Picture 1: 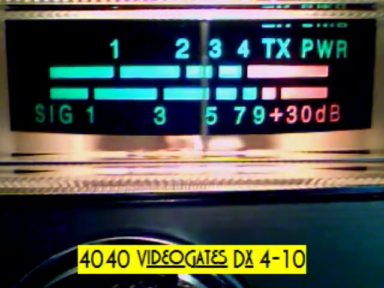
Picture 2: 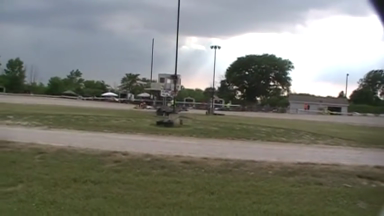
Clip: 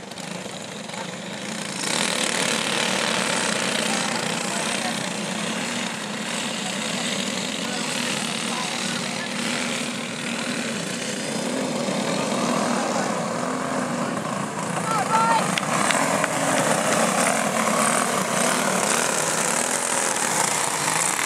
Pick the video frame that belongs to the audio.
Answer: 2